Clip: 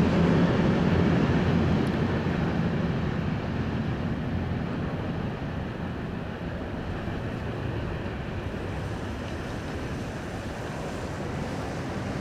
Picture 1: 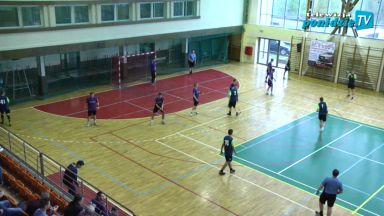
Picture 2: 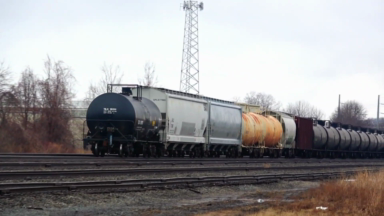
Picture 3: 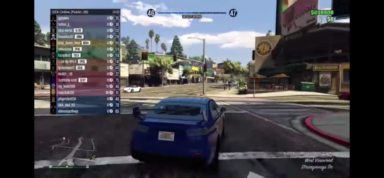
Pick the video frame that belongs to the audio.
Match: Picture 2